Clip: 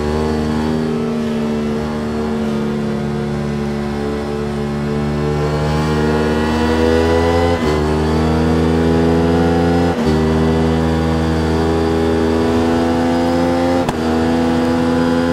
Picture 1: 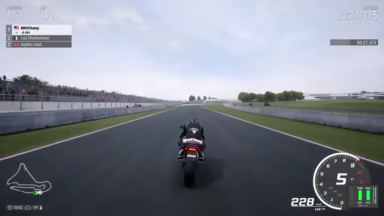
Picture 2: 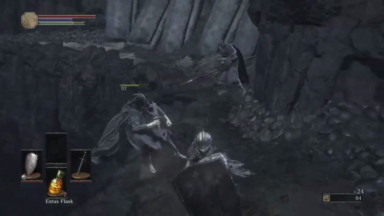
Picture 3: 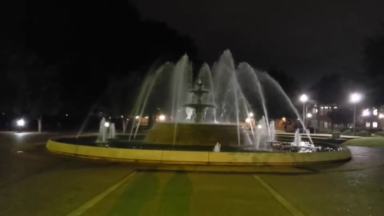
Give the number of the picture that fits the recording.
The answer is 1